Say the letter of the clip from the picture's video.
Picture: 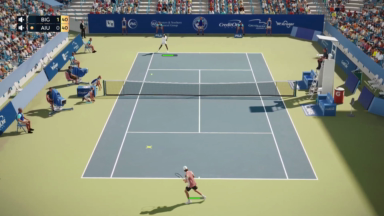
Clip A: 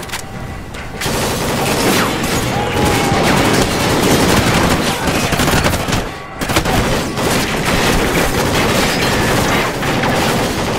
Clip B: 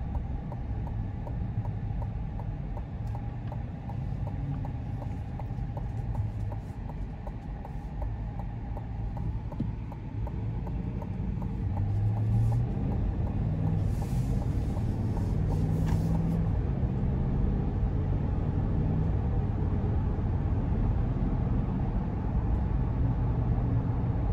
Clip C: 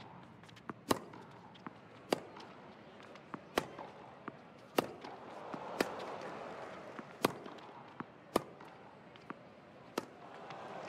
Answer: C